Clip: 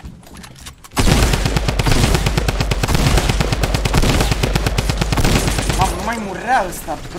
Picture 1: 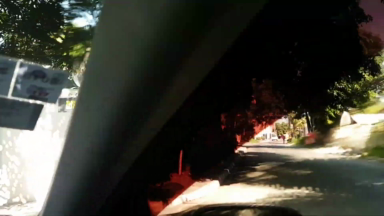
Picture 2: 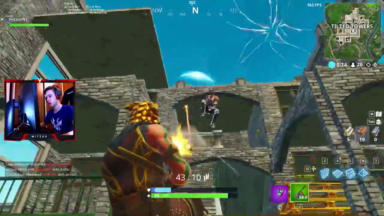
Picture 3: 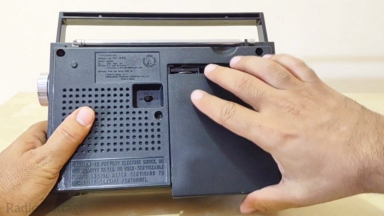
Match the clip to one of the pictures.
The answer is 2